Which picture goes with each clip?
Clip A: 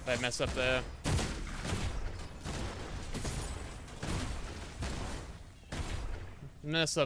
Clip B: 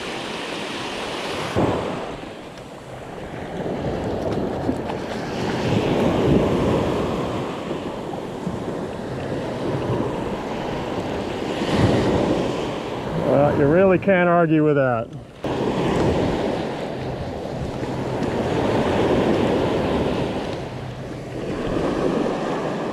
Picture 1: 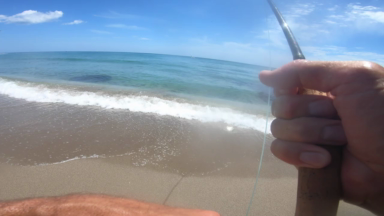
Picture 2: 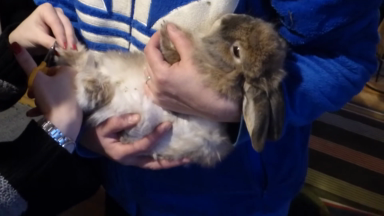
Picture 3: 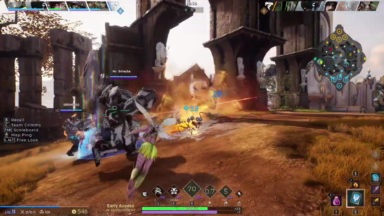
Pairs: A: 3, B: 1